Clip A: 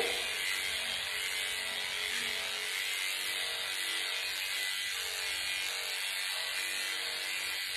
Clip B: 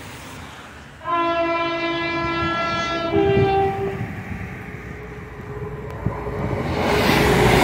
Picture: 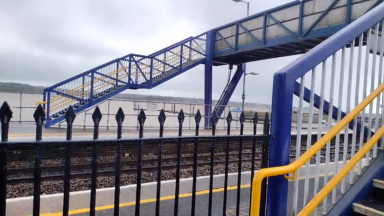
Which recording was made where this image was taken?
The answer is B